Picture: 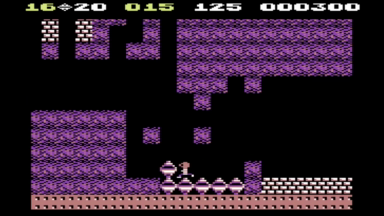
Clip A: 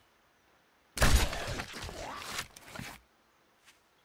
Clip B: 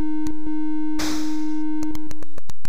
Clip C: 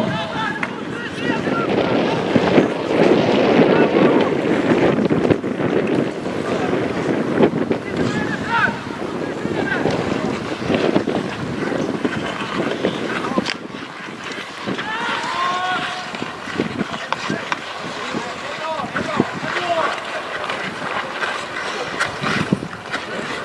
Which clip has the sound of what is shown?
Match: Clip B